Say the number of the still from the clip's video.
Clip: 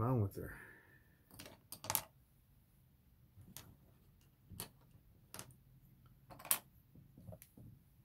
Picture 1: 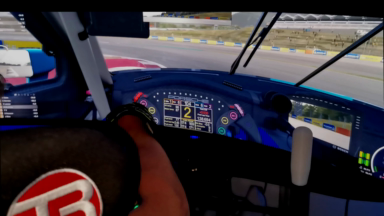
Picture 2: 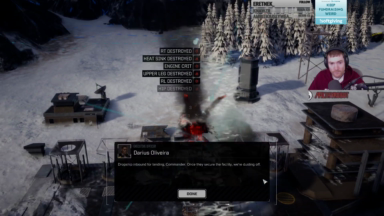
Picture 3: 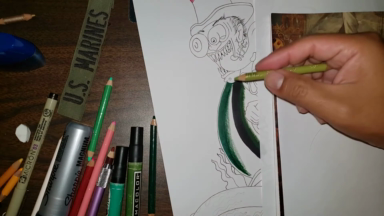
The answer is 3